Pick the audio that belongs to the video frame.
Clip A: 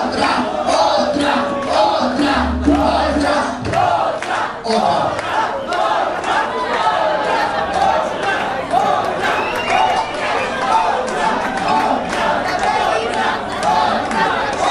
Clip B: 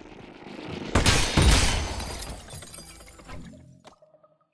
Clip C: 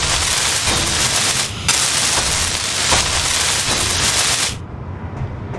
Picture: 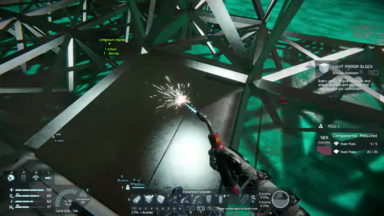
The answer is C